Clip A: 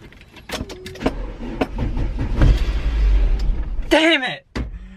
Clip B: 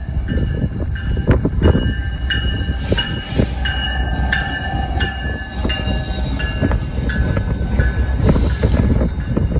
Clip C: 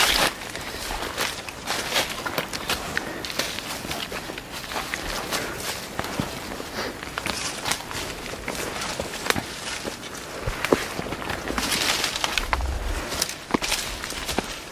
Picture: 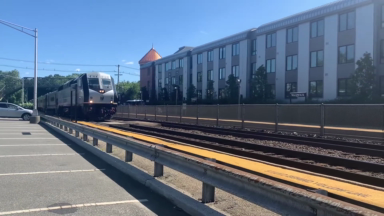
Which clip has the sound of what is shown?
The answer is B